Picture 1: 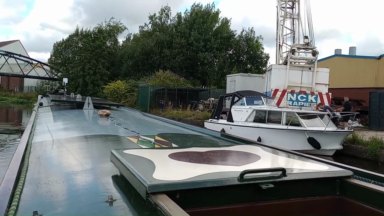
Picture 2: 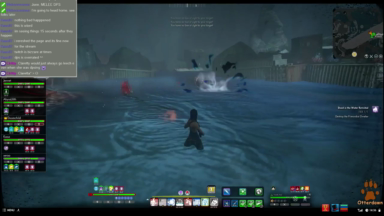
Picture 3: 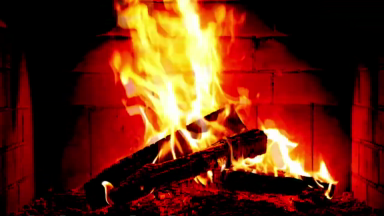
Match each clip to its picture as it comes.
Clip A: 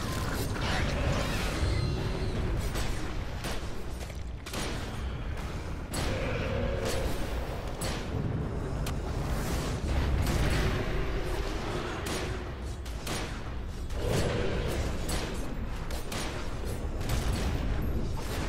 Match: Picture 2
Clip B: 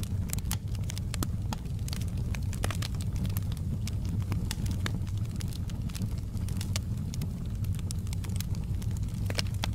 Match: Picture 3